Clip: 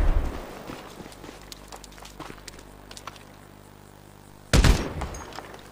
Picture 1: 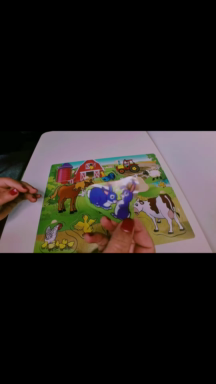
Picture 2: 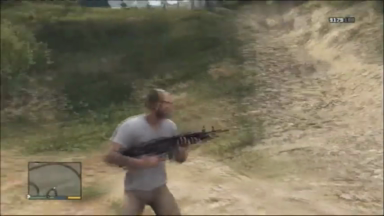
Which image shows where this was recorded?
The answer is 2